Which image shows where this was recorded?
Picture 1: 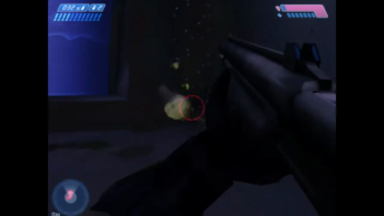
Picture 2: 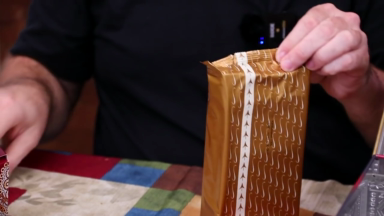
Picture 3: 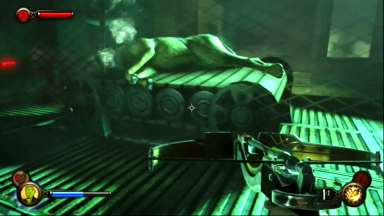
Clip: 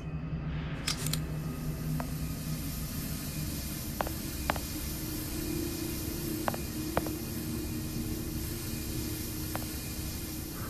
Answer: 3